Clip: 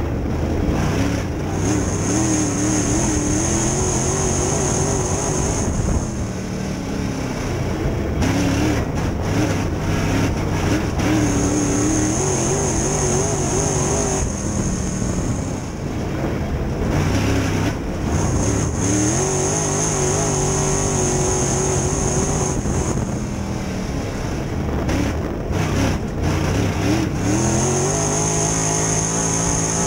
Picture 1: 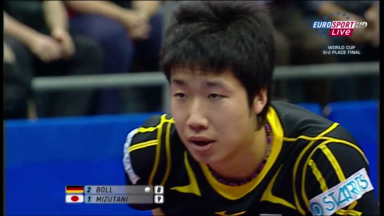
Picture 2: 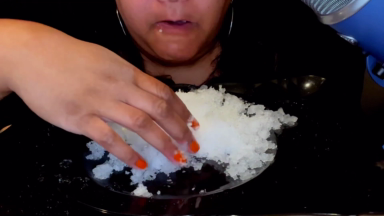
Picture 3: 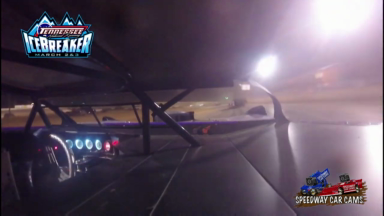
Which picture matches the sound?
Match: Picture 3